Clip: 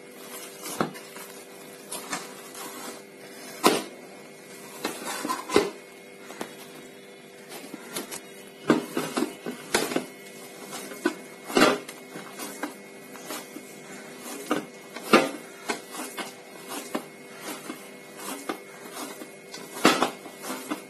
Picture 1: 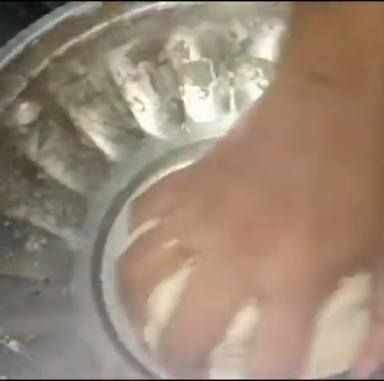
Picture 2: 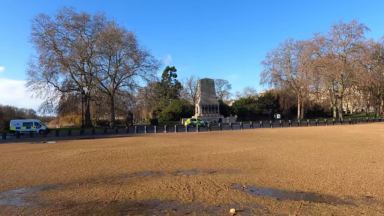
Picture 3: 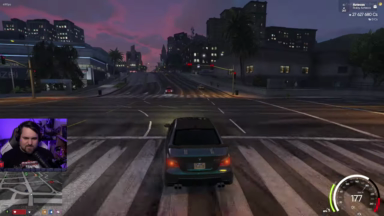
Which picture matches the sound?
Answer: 1